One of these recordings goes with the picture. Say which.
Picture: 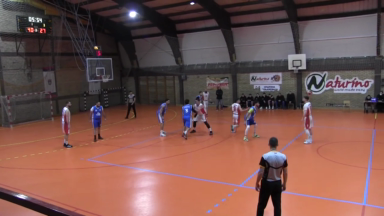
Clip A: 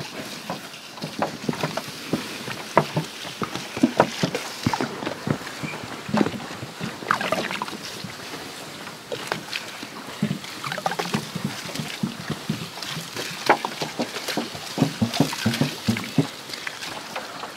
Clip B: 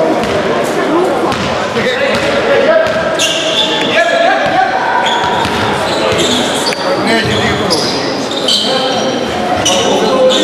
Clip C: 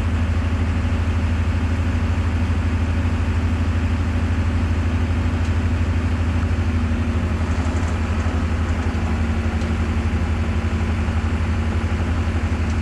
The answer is B